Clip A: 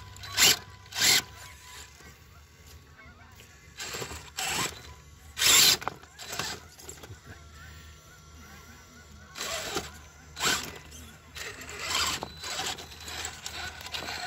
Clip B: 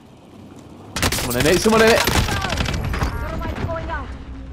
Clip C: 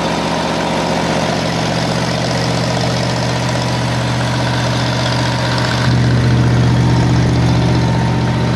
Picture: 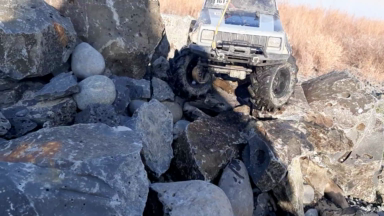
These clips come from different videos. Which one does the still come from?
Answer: A